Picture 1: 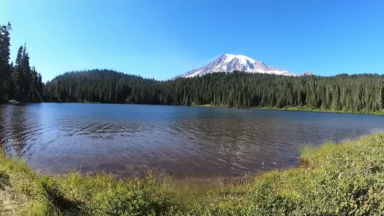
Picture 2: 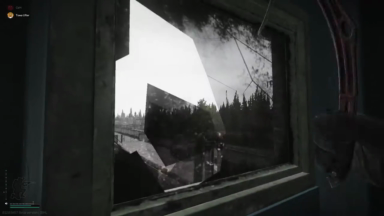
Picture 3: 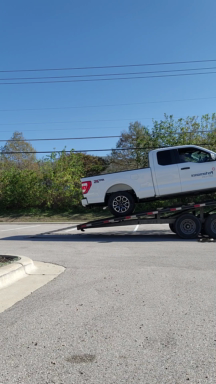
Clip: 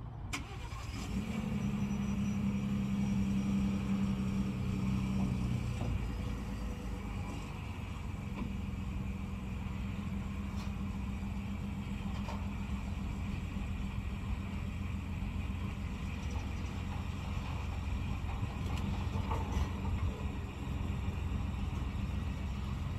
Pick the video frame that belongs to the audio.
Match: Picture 3